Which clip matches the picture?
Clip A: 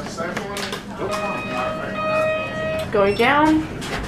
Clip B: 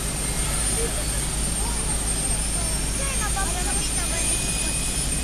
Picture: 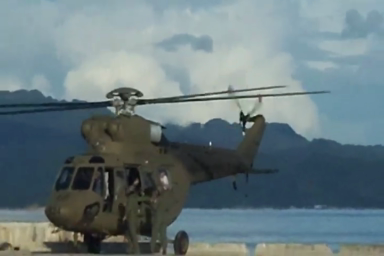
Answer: B